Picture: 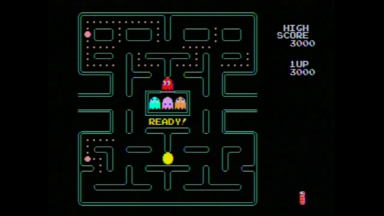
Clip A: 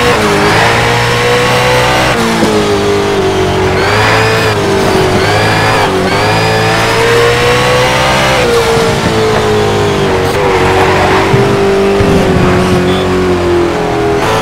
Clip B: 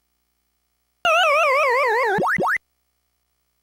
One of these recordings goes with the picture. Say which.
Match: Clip B